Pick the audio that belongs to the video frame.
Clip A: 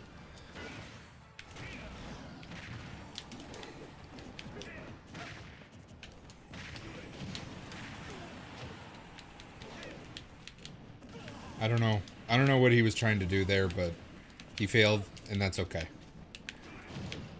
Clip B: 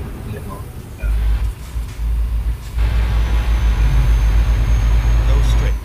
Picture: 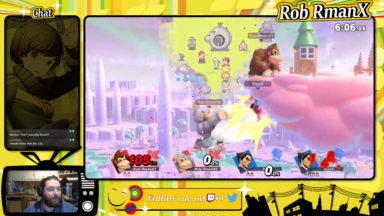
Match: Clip A